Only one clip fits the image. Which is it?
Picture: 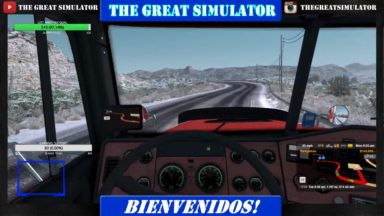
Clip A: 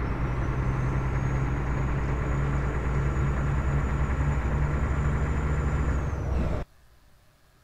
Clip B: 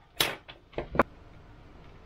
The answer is A